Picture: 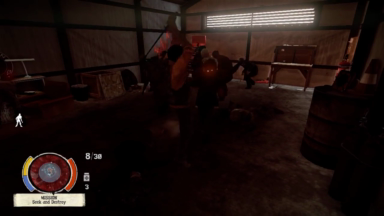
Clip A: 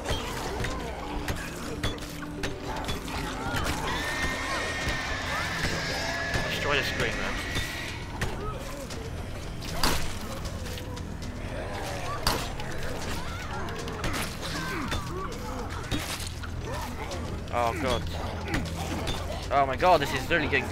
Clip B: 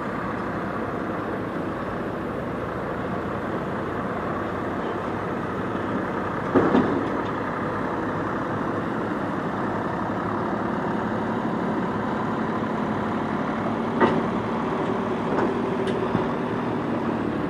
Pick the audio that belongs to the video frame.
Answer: A